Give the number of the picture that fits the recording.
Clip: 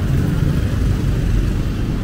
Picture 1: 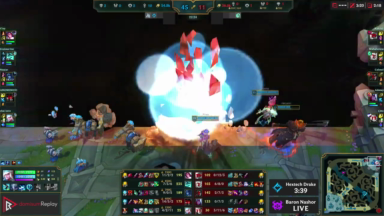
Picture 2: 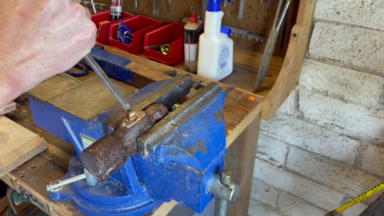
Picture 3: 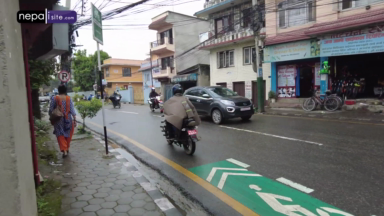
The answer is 3